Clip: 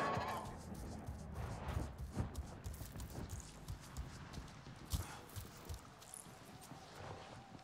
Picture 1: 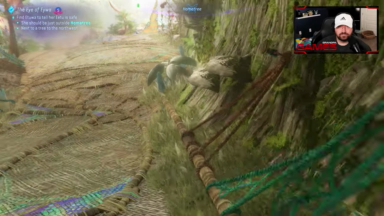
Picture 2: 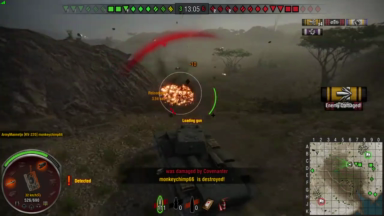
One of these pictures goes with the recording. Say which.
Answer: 1